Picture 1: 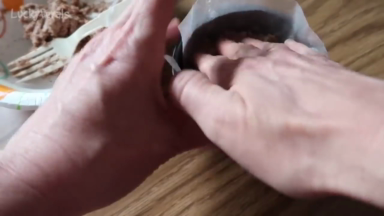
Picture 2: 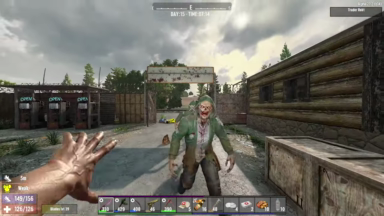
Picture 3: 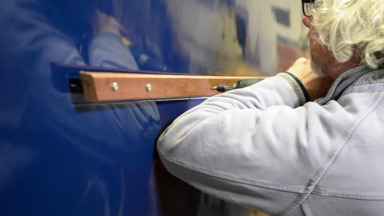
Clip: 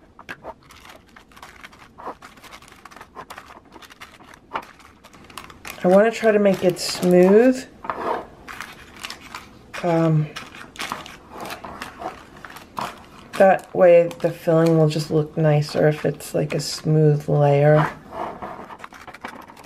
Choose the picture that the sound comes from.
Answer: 1